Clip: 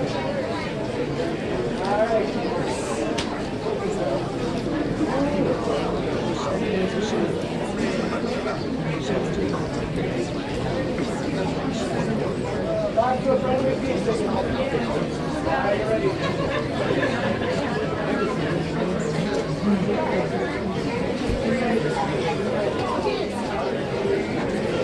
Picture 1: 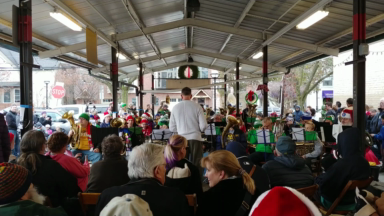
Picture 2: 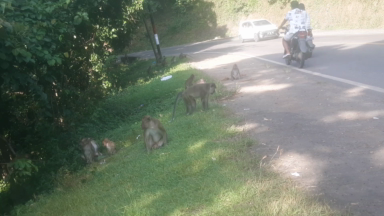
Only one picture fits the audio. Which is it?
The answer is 1